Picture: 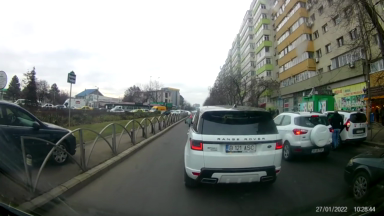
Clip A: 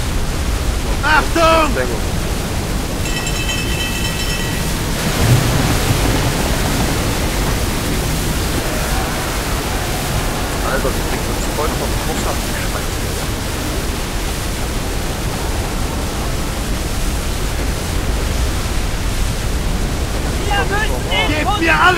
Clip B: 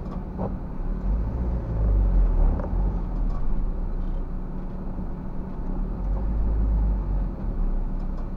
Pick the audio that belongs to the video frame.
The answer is B